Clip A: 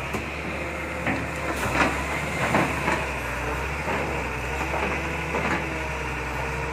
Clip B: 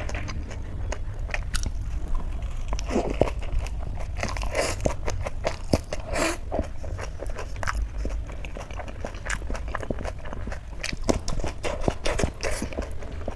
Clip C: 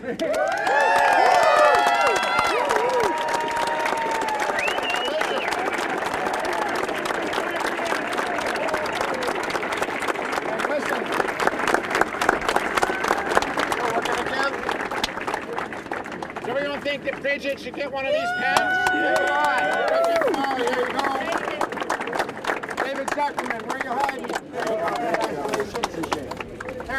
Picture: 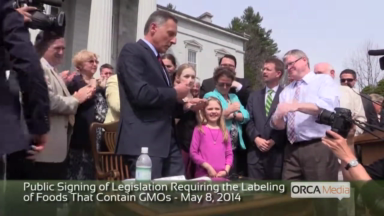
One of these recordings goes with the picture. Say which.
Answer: C